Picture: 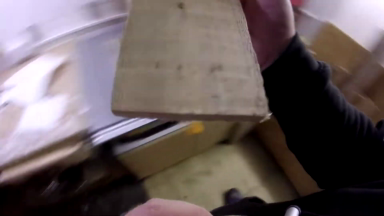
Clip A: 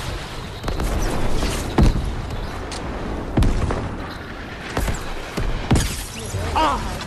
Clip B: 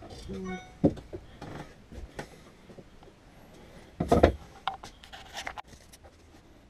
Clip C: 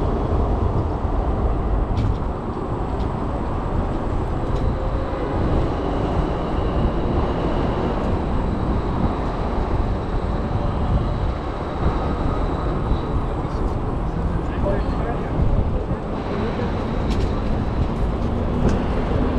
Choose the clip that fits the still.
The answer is B